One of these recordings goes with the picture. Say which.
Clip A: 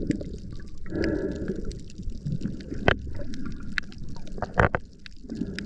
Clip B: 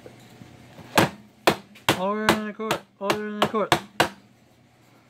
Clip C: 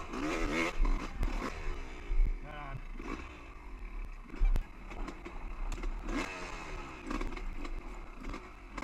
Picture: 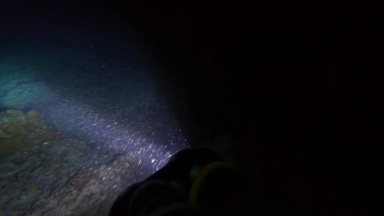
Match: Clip A